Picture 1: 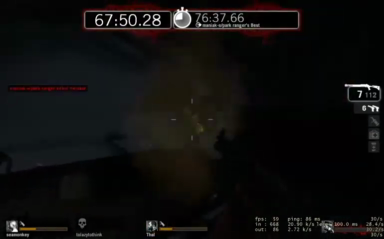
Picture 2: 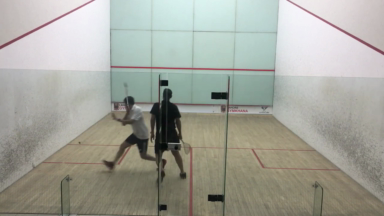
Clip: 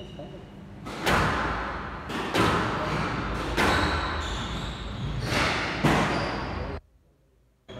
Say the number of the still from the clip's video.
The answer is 2